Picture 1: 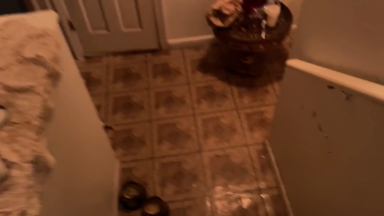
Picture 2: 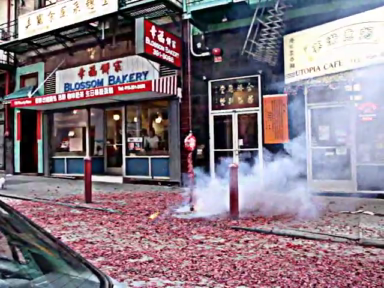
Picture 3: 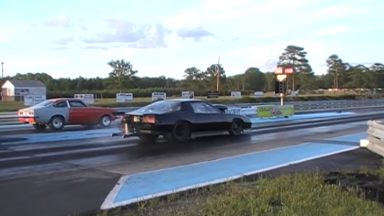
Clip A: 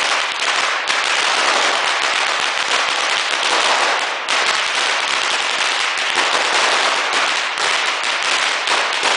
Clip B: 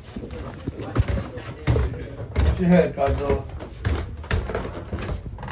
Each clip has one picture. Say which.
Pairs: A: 2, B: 1